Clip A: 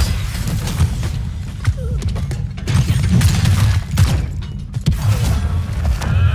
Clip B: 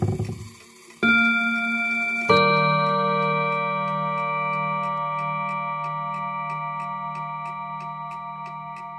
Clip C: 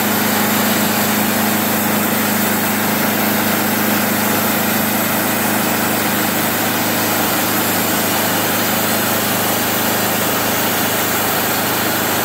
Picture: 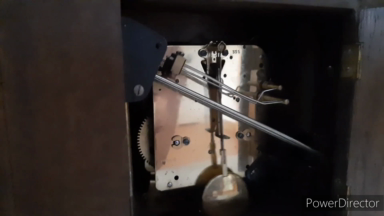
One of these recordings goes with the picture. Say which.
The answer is B